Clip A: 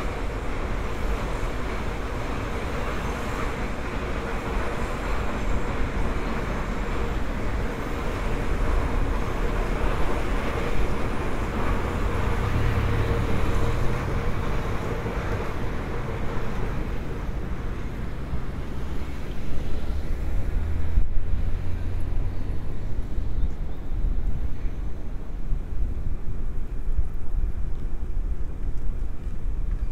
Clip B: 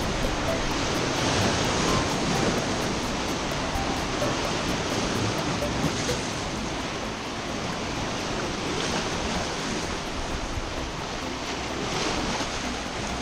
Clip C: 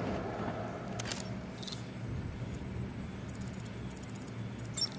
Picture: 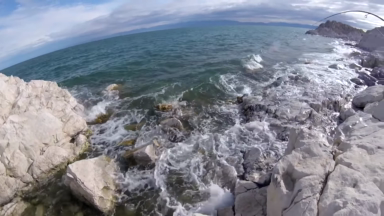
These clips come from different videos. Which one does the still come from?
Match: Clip B